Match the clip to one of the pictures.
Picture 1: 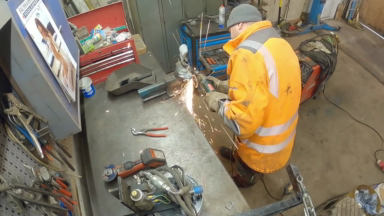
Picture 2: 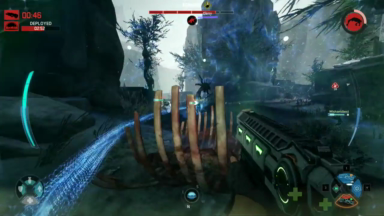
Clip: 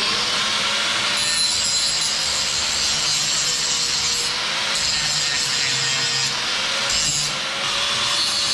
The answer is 1